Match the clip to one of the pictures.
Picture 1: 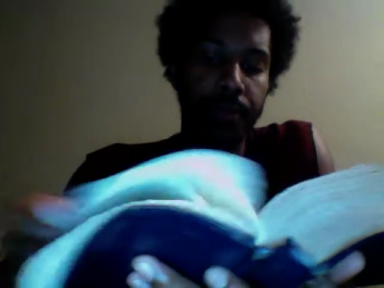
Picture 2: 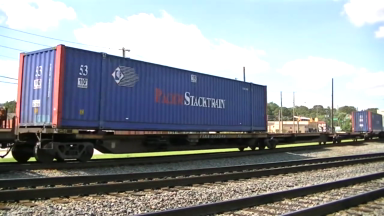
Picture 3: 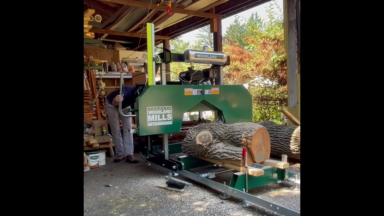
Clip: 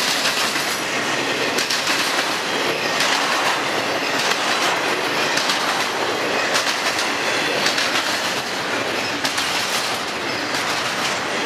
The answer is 2